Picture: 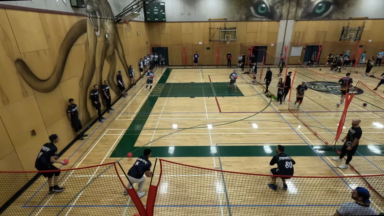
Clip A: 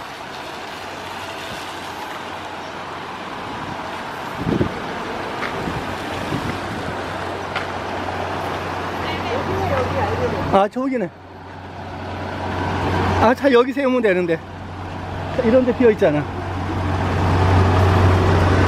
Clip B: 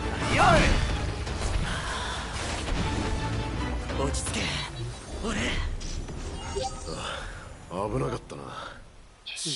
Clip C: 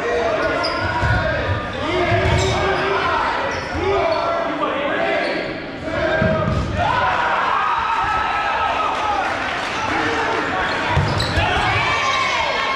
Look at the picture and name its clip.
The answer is C